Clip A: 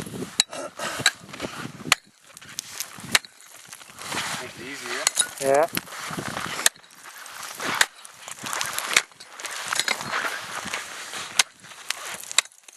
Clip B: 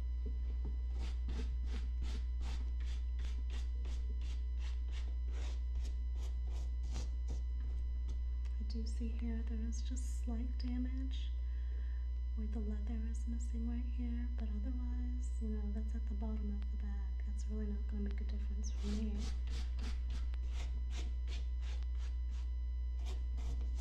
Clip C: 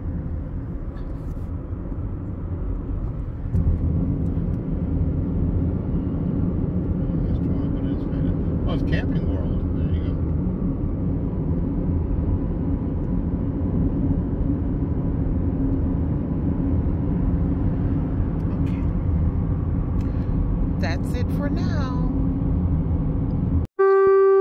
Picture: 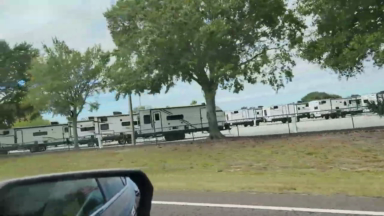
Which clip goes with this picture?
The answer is C